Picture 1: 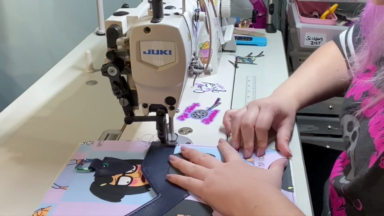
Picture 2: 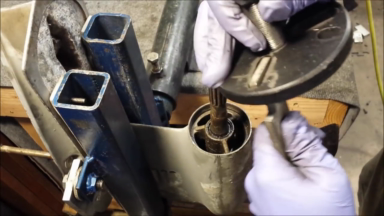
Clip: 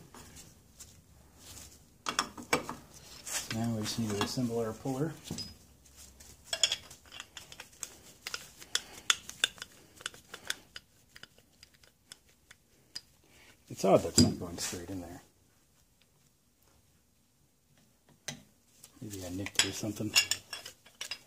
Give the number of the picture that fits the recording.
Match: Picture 2